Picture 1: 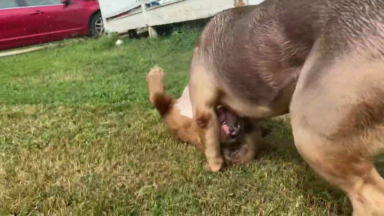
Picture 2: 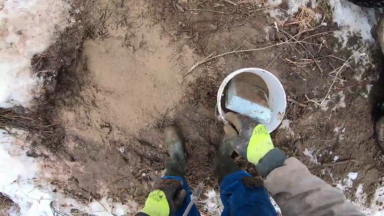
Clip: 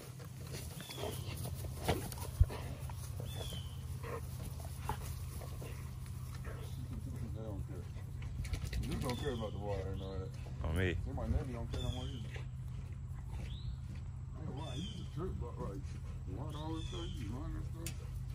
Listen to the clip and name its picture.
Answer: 1